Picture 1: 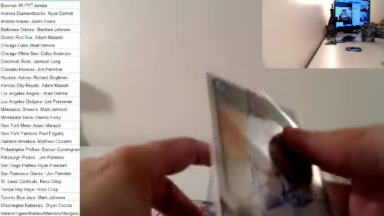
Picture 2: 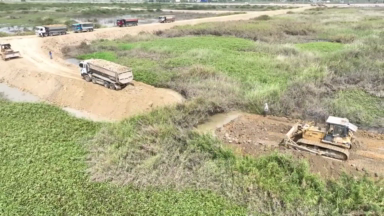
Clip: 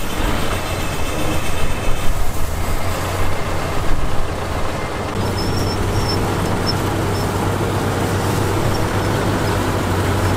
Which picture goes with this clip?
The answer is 2